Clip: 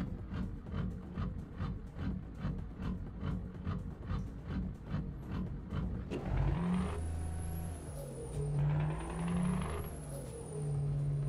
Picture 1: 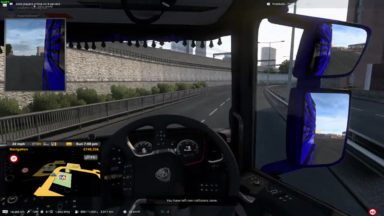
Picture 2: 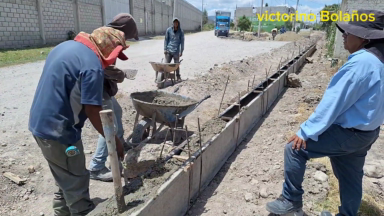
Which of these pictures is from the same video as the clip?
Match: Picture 1